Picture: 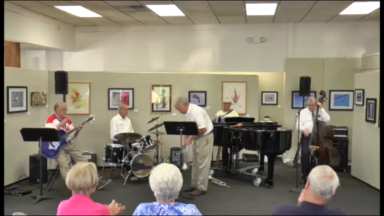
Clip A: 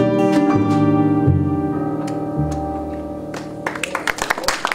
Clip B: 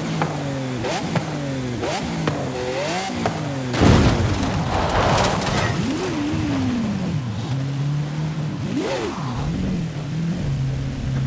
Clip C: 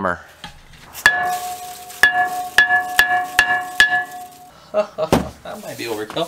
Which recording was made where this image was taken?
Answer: A